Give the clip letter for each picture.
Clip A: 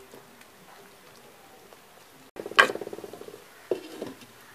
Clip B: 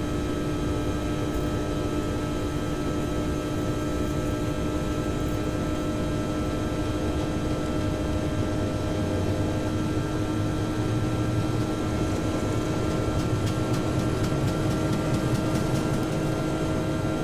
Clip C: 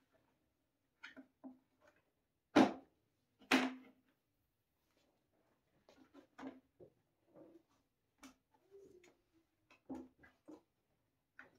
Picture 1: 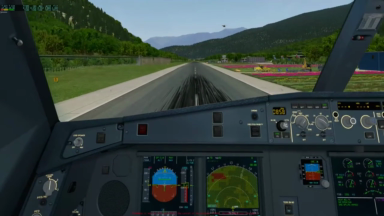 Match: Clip B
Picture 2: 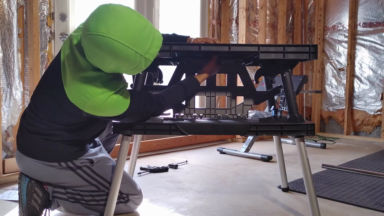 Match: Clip C